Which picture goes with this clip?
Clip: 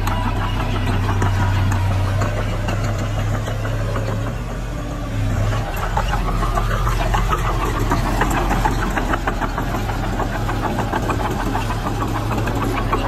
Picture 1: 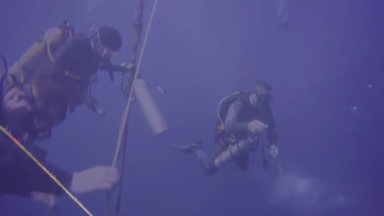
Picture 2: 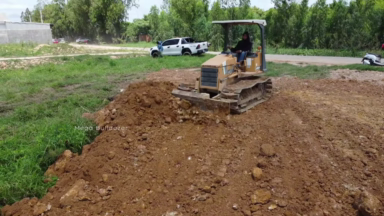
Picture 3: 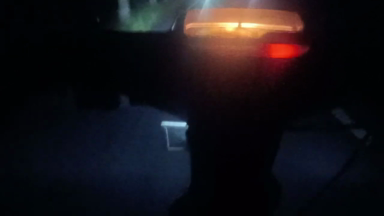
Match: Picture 2